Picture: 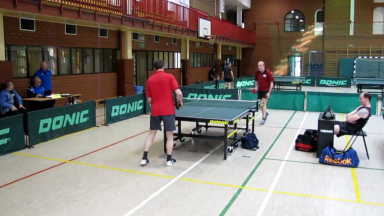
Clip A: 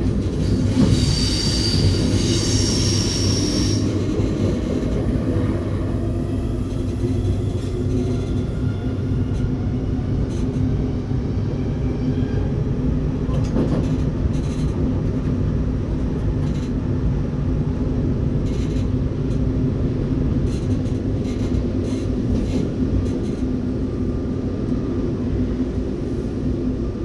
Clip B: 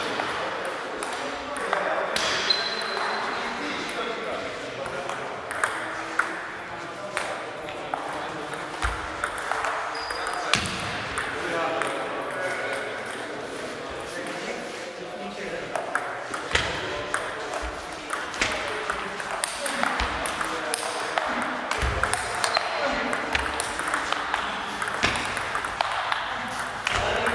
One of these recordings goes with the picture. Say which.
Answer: B